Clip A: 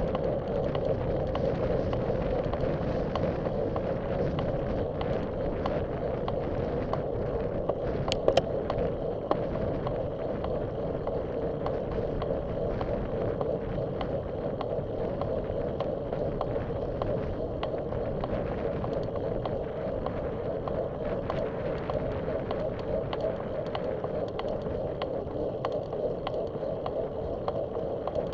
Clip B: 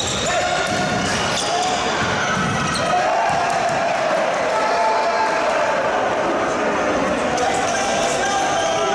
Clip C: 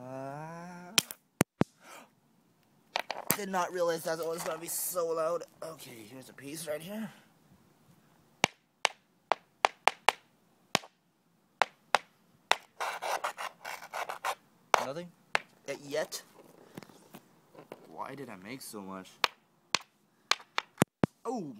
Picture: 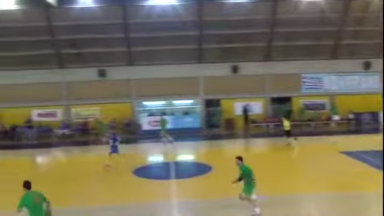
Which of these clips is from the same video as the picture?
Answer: B